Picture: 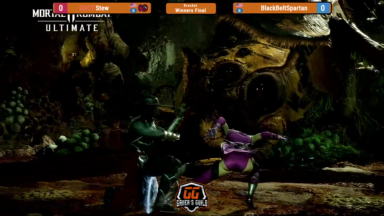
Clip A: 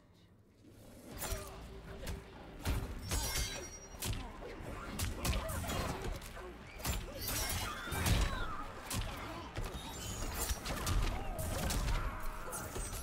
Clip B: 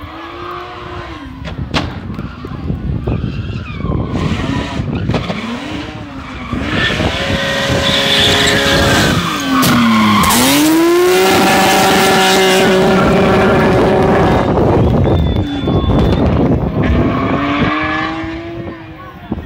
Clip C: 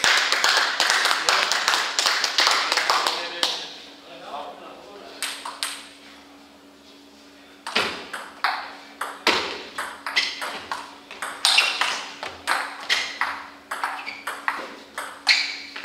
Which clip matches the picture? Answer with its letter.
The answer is A